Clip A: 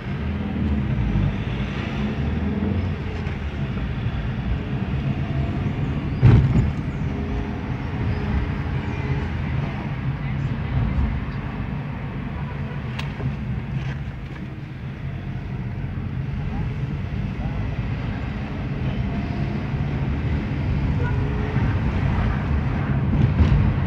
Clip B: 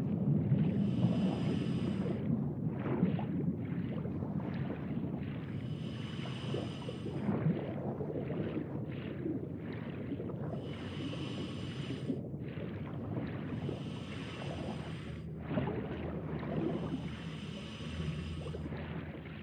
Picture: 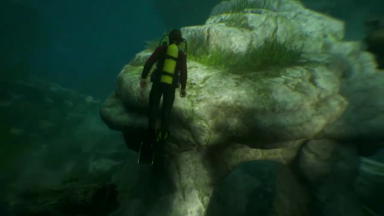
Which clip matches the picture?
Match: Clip B